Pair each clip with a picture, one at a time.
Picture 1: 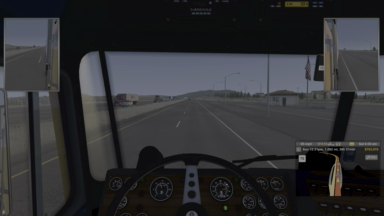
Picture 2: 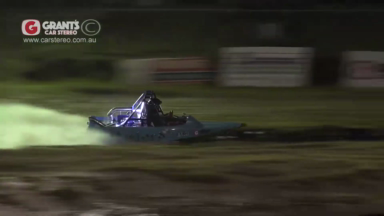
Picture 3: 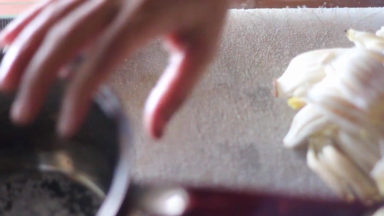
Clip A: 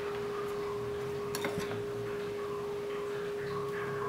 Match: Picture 3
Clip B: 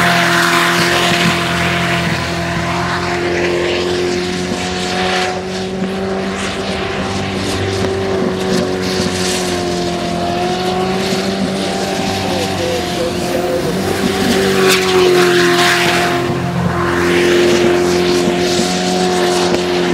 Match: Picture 2